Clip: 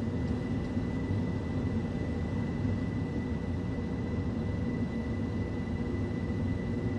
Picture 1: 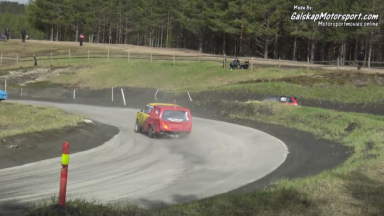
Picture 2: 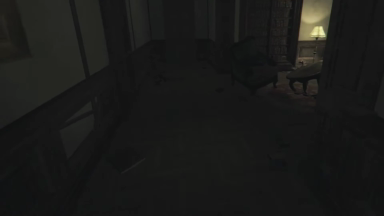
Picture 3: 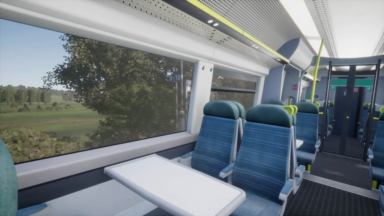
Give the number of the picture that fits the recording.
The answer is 3